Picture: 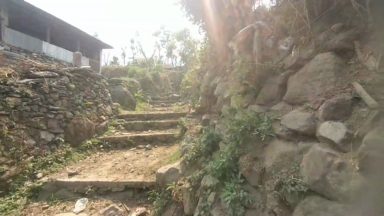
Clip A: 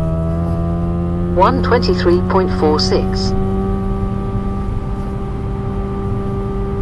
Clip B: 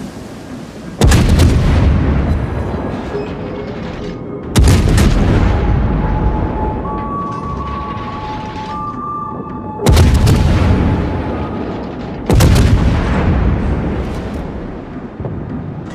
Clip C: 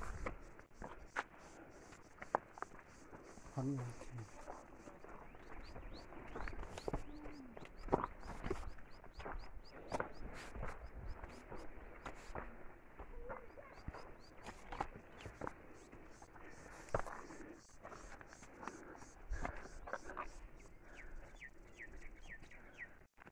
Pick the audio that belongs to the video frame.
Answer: C